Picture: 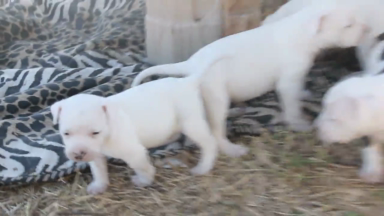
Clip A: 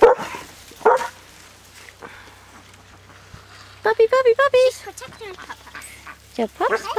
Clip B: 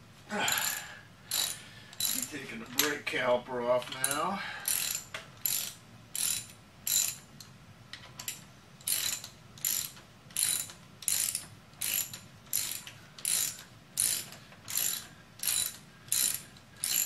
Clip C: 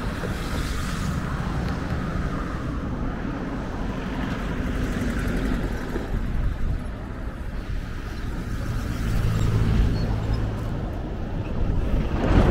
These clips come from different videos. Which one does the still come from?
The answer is A